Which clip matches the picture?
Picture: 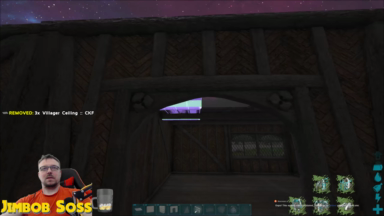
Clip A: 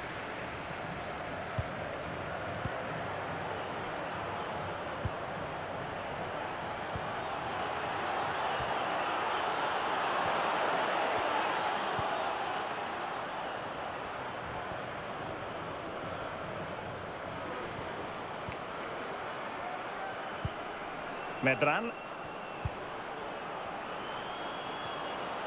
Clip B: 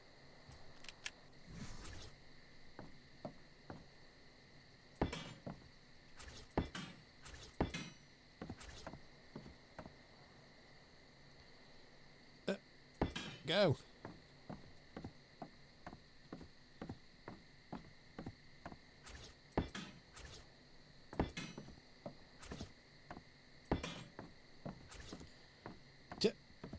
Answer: B